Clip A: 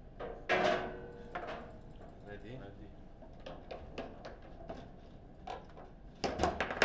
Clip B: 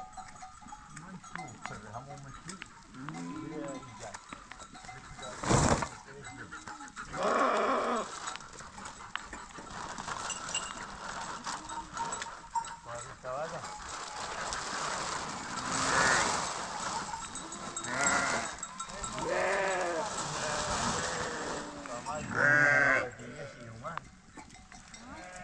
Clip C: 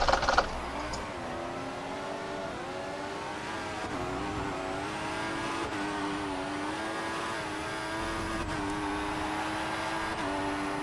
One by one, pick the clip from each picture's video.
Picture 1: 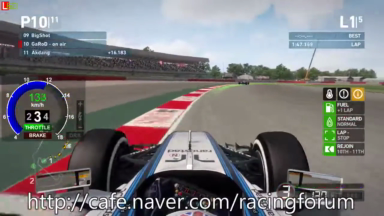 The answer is C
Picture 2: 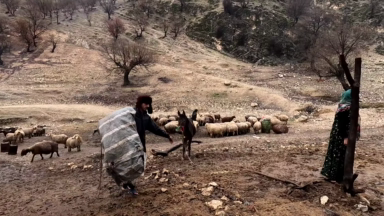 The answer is B